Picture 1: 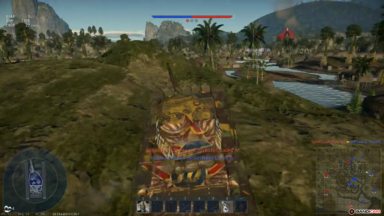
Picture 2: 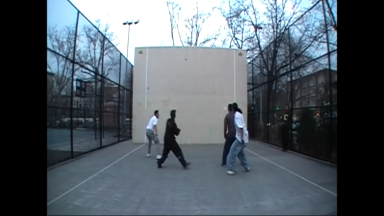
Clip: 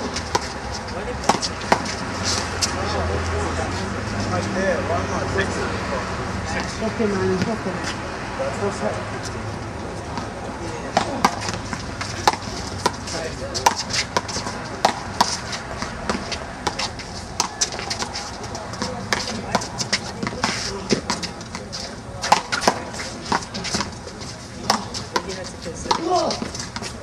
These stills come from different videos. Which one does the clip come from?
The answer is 2